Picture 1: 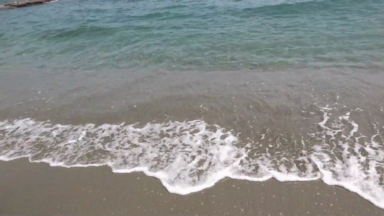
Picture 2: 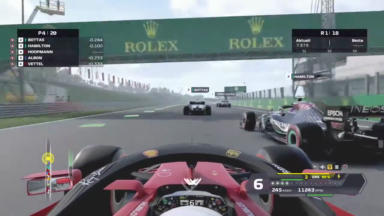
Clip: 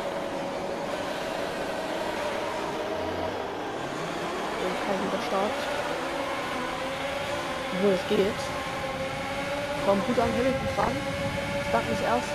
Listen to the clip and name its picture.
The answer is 2